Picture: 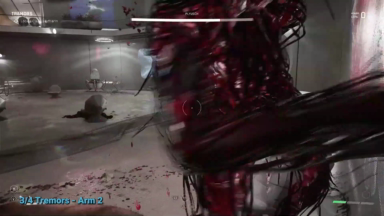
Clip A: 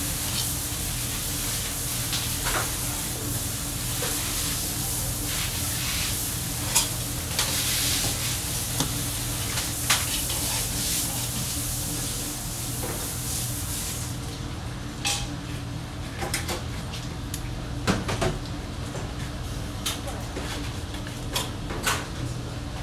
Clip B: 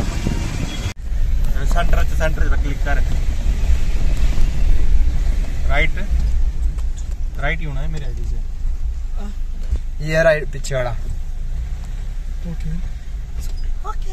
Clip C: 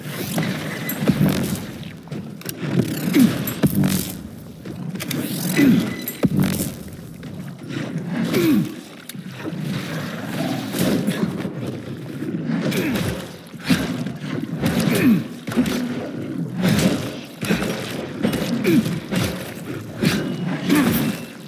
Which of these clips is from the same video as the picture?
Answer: C